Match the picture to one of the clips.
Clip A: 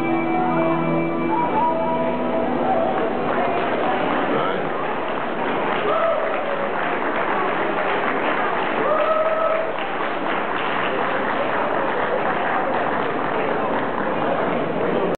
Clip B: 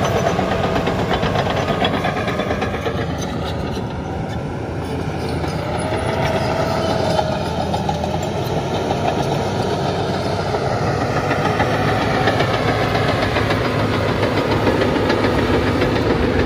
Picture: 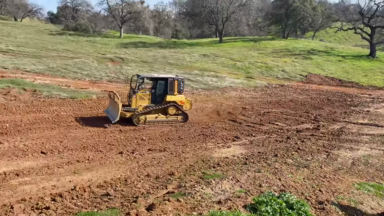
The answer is B